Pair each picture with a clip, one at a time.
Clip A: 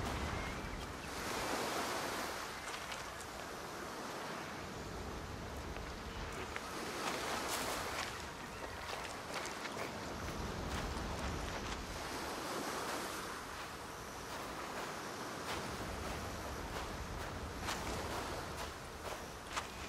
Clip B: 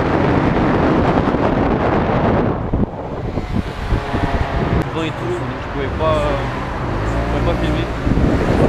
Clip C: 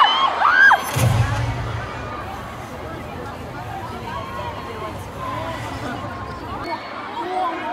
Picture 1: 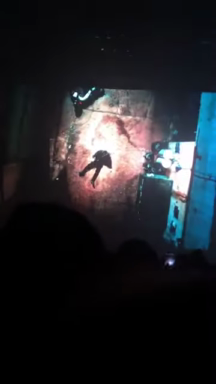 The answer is C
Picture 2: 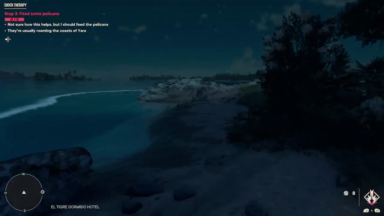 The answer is A